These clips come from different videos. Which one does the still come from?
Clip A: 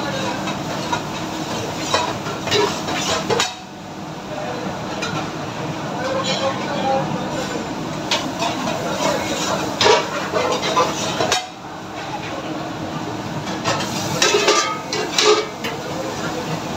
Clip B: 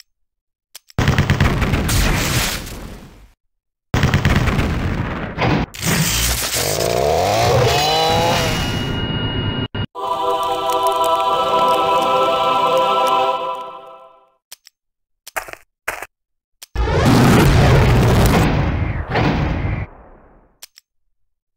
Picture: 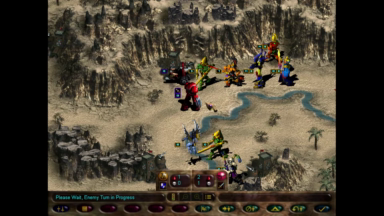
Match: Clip B